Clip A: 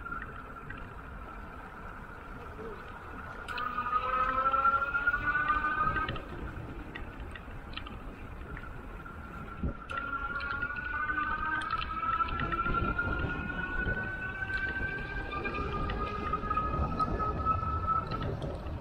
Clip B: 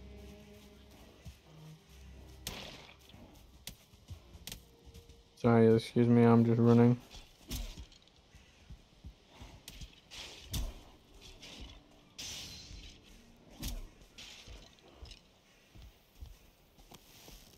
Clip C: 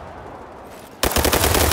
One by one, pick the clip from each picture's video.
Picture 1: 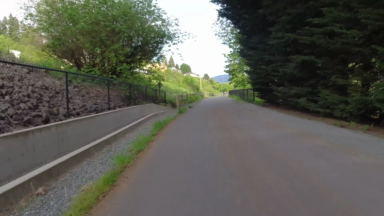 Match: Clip A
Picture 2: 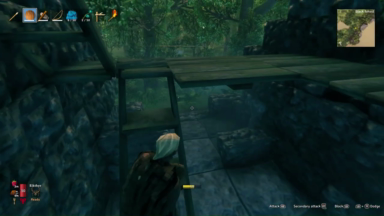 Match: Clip B